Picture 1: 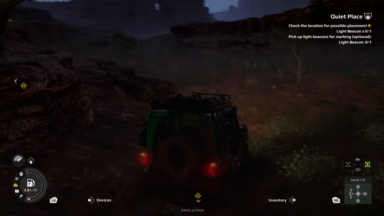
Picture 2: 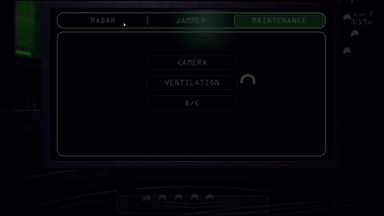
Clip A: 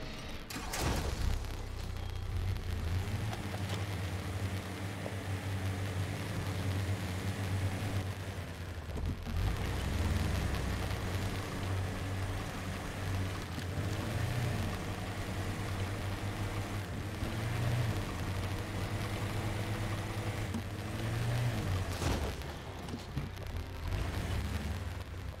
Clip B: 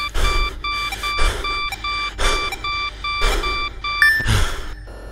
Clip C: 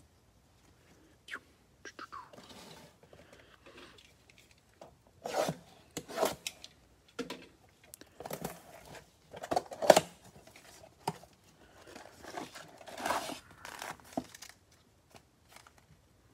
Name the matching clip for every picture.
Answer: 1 A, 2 B